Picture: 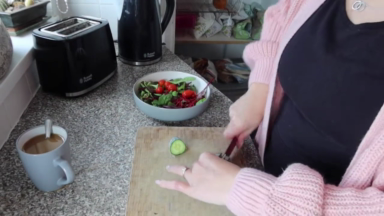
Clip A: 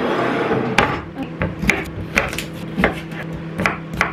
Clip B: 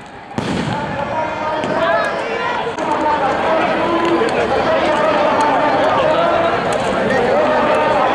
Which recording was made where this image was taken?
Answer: A